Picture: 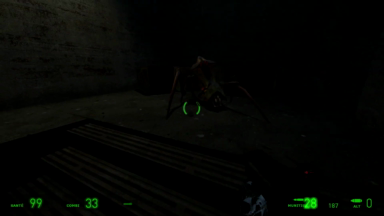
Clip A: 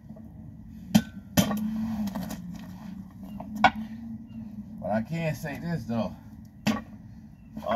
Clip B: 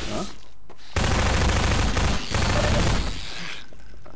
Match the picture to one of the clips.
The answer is B